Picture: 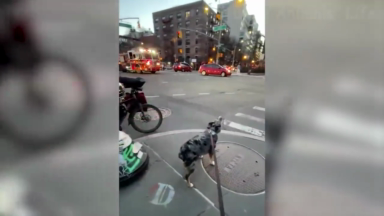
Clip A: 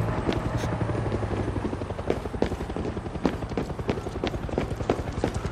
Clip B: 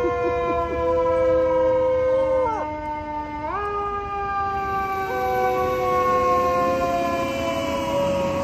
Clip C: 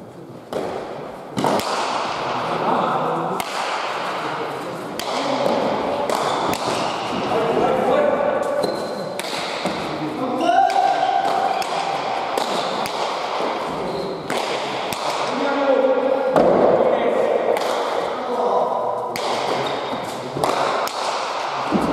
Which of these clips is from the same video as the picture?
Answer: B